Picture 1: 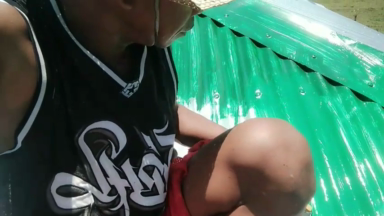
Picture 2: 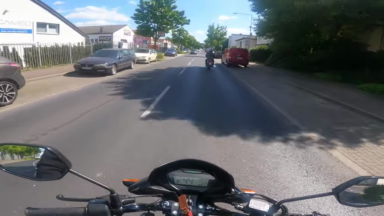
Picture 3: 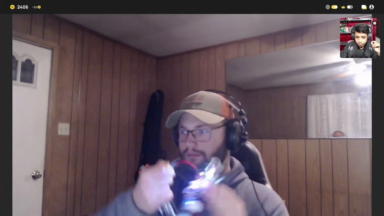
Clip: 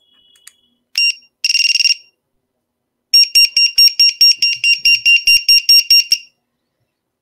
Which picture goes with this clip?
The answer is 3